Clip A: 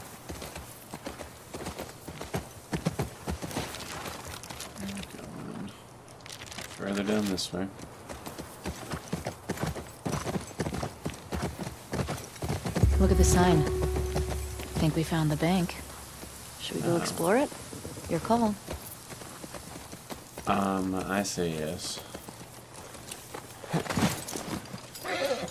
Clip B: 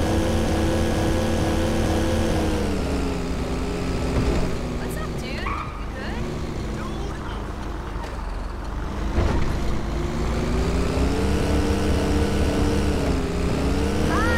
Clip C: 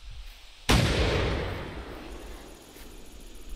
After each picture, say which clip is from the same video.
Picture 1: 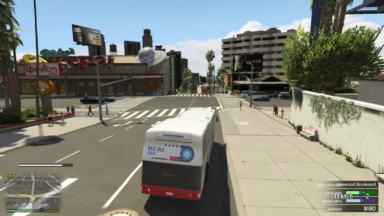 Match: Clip B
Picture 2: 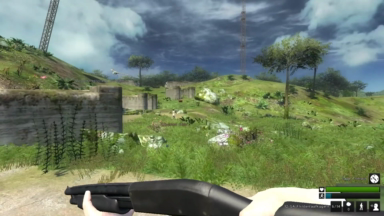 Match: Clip C